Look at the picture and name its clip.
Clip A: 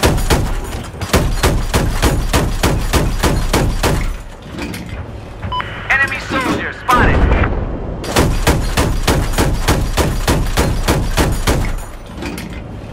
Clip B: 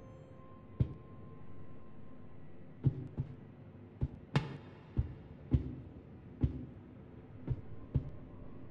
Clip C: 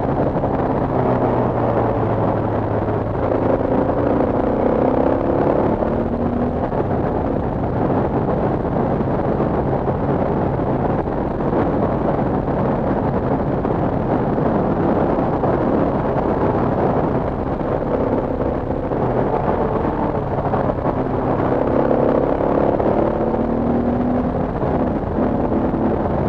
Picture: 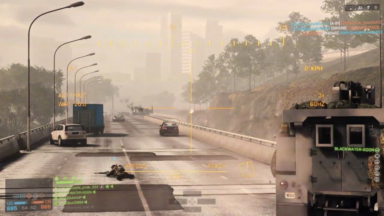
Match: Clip A